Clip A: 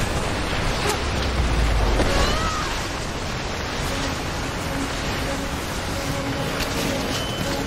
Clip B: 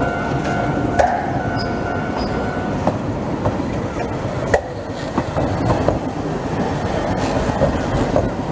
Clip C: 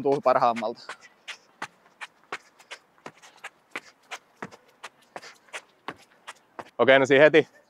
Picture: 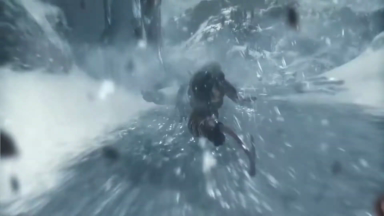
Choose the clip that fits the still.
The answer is A